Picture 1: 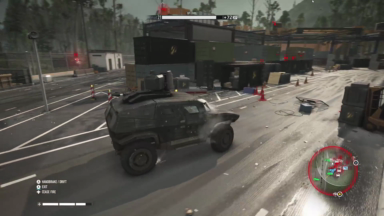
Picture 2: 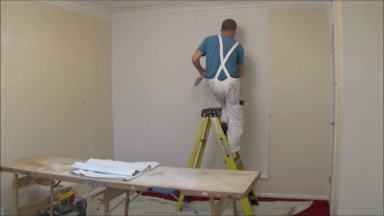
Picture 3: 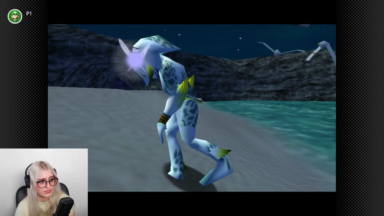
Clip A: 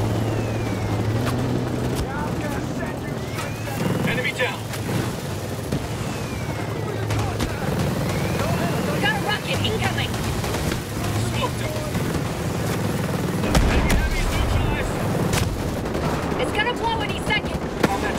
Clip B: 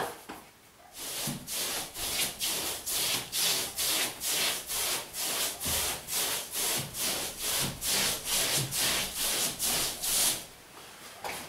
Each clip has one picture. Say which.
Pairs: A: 1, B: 2